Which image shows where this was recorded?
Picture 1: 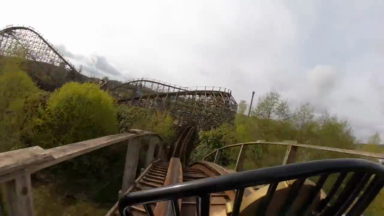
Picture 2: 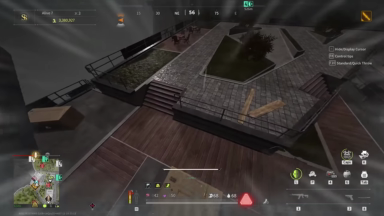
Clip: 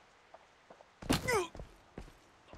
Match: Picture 2